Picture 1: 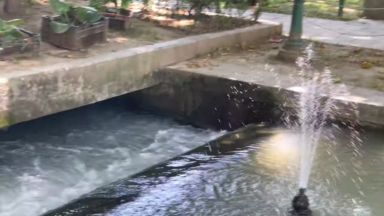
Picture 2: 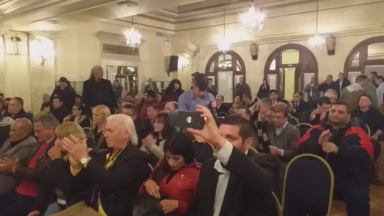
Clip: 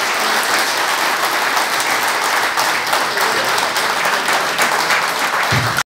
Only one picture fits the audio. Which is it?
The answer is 2